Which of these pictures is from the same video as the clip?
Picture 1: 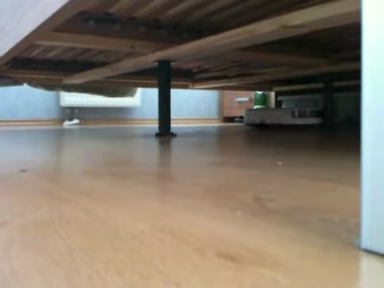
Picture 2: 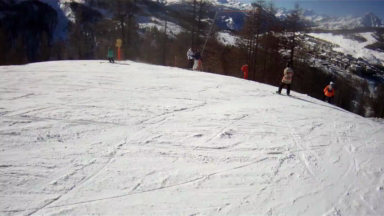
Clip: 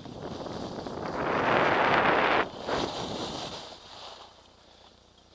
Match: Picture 2